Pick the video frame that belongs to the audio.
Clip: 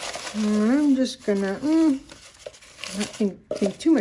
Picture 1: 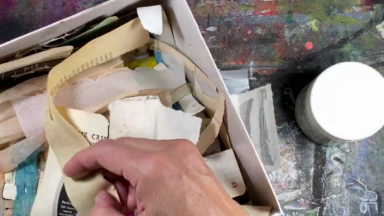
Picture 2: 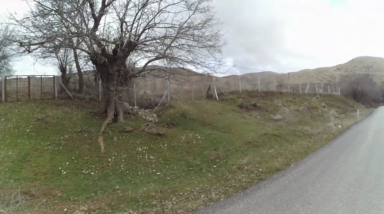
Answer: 1